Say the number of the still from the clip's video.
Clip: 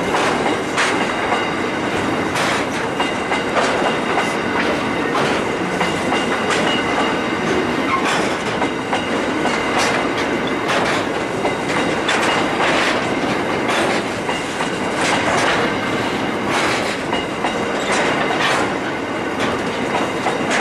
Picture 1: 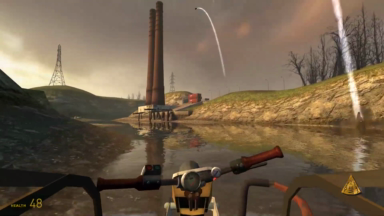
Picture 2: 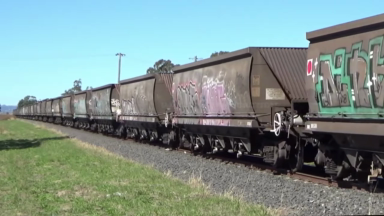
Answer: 2